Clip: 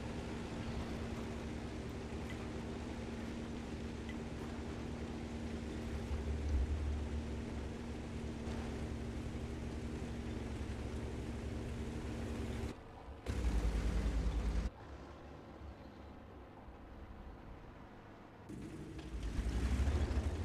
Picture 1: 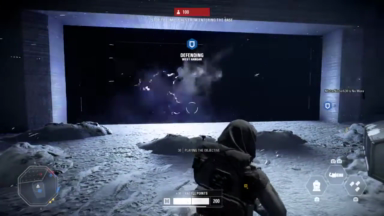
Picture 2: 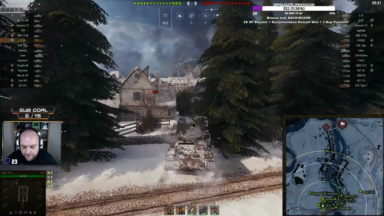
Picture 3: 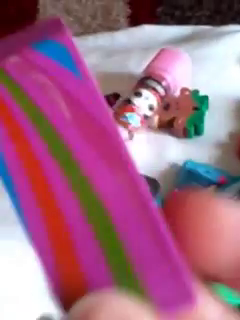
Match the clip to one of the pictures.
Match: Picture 2